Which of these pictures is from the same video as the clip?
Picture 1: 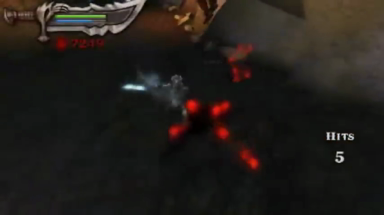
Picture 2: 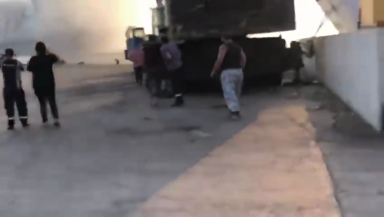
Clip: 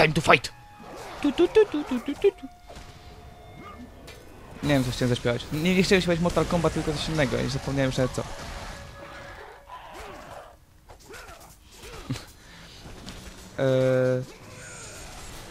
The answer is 1